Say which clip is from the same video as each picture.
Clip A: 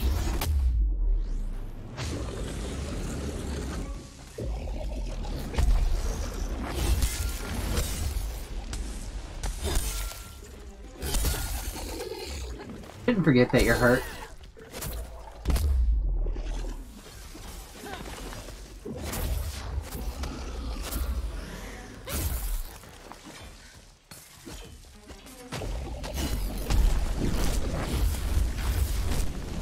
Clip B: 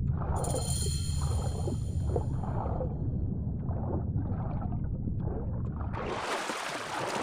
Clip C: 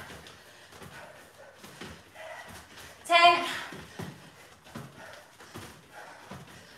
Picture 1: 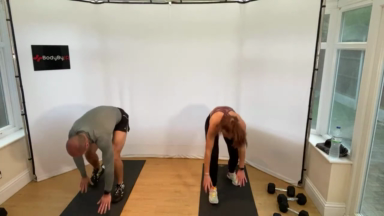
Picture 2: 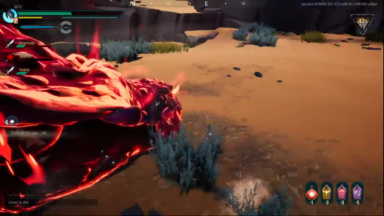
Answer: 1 C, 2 A